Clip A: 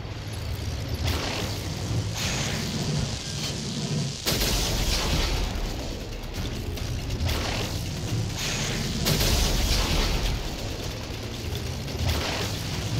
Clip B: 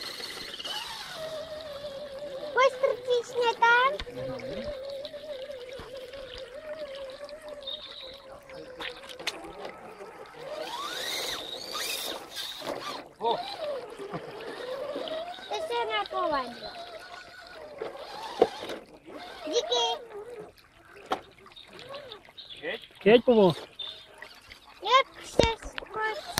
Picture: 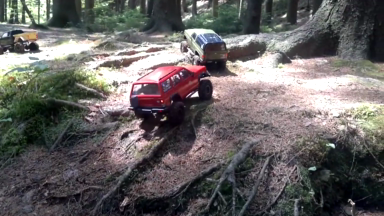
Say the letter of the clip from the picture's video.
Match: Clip B